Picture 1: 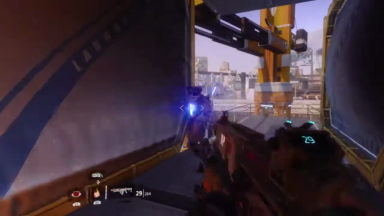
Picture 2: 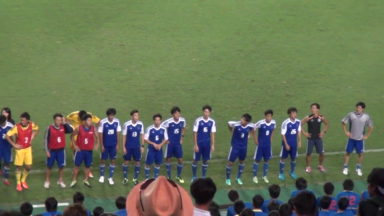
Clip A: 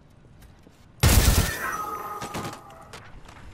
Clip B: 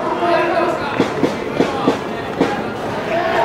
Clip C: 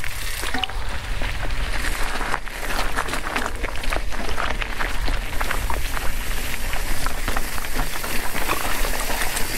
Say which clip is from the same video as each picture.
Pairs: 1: A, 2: B